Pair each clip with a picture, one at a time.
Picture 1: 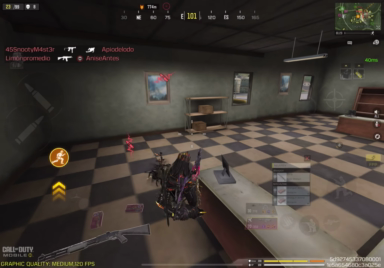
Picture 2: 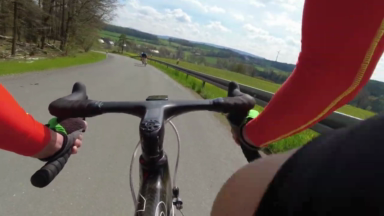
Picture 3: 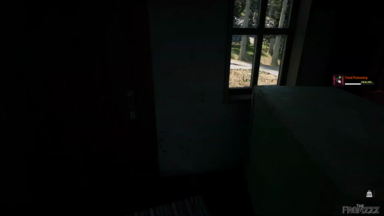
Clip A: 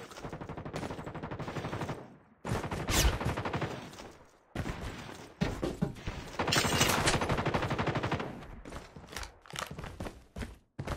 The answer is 1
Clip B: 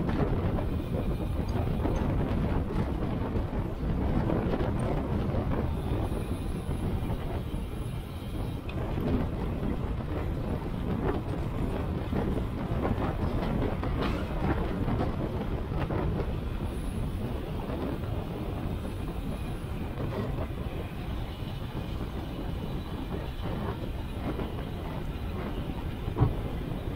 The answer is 2